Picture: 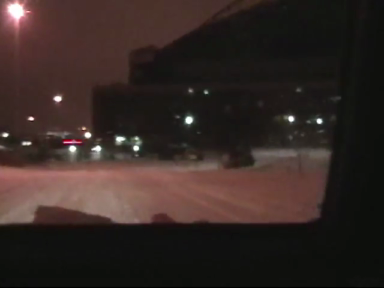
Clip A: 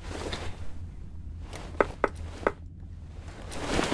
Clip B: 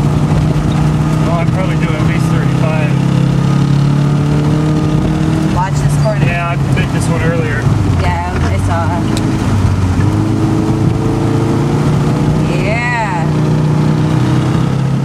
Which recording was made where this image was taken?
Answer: B